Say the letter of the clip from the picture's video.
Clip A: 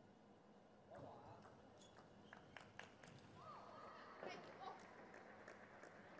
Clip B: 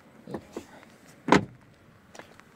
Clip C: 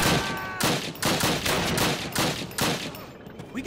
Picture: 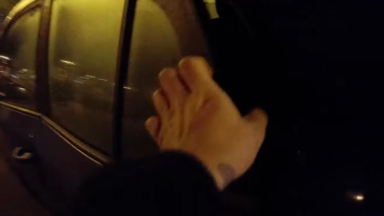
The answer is B